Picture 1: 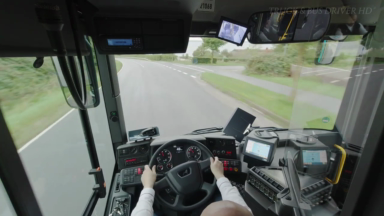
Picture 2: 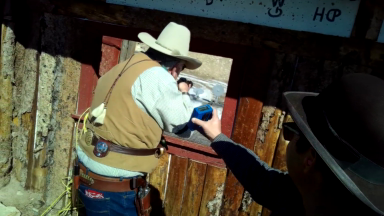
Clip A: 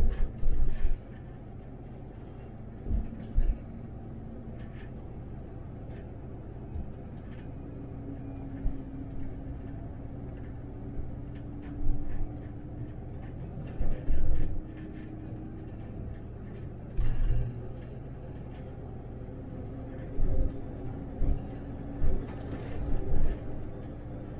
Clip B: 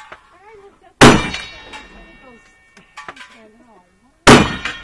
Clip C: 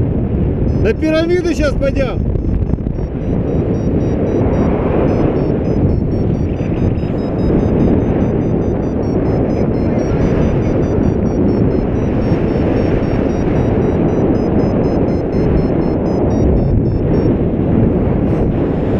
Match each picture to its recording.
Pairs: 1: A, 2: B